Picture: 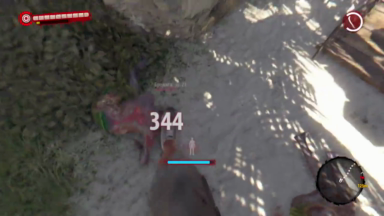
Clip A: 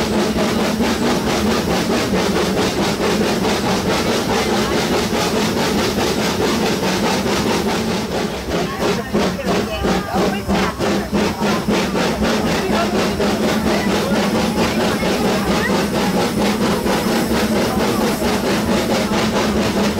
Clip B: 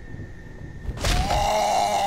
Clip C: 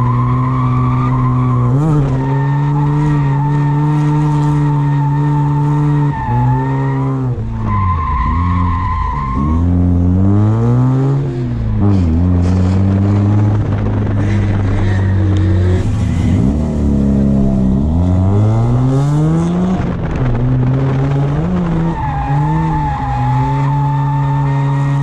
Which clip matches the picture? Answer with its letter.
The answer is B